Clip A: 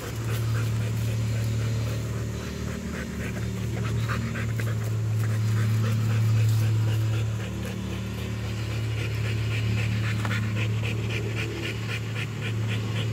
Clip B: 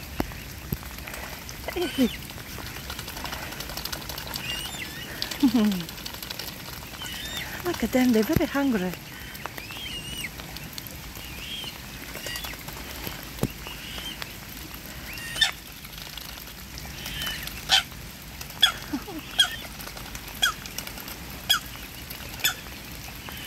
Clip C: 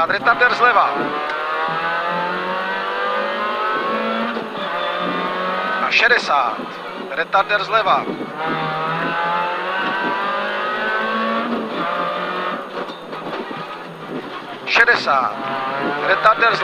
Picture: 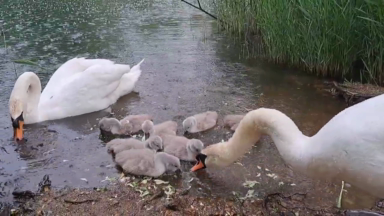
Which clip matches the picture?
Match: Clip B